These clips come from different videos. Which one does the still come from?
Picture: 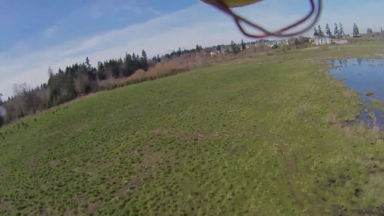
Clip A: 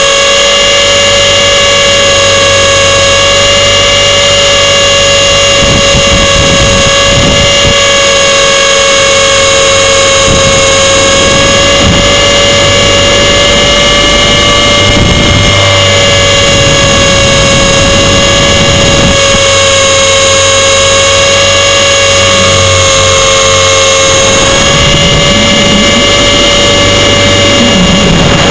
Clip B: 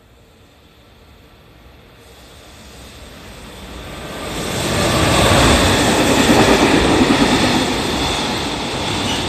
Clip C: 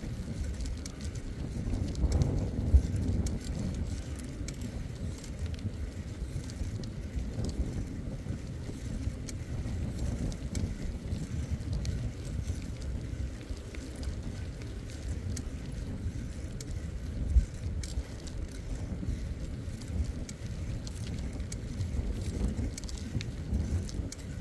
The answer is A